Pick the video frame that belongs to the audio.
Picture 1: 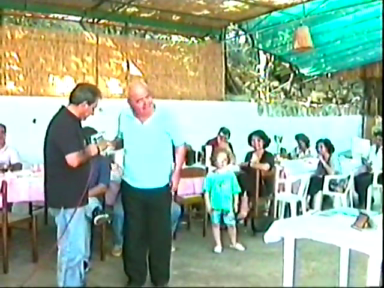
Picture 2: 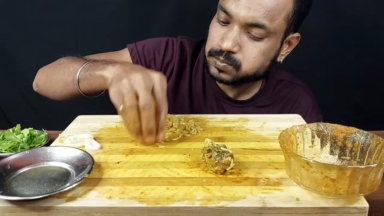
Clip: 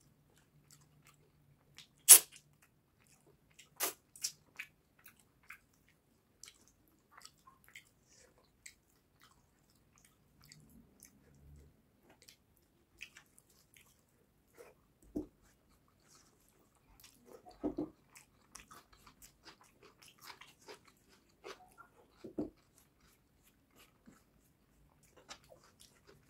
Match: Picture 2